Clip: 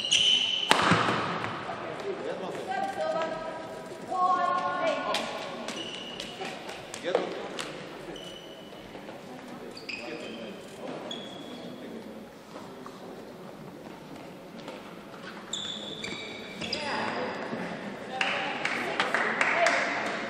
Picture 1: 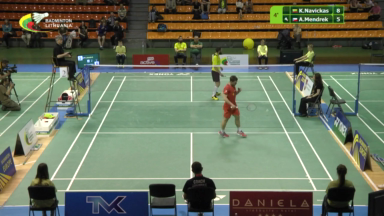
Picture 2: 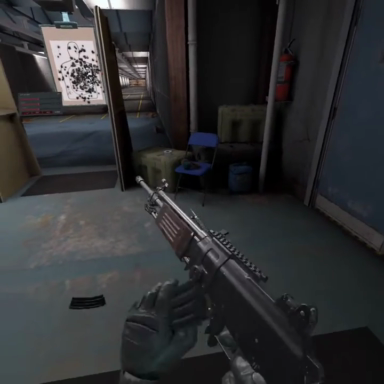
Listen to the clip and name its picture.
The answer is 1